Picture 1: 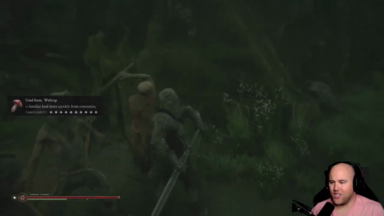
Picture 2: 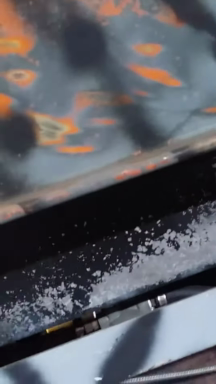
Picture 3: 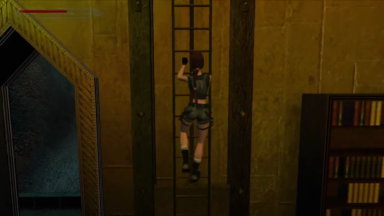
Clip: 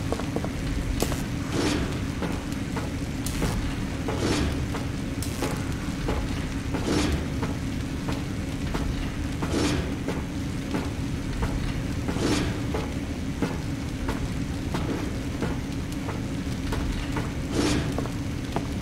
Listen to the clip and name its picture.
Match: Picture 3